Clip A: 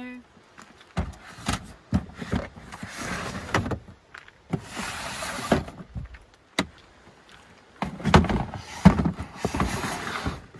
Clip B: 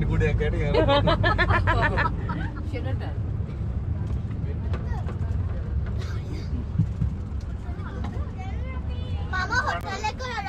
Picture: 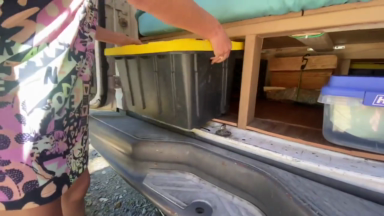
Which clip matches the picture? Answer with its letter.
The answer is A